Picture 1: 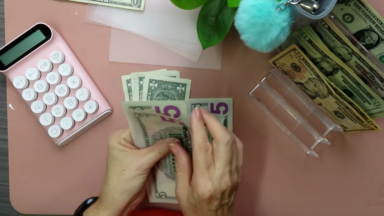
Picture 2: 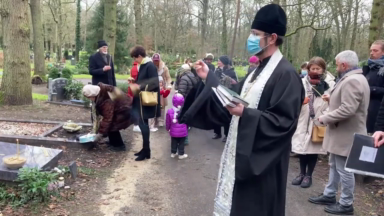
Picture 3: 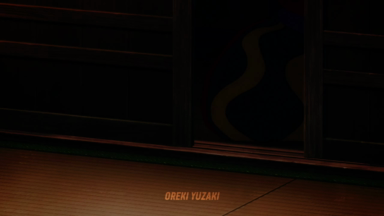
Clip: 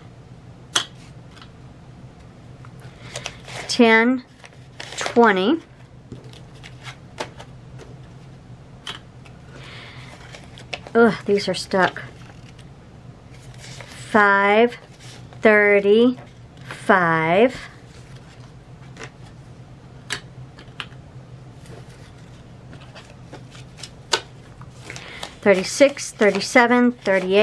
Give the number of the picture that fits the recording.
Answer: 1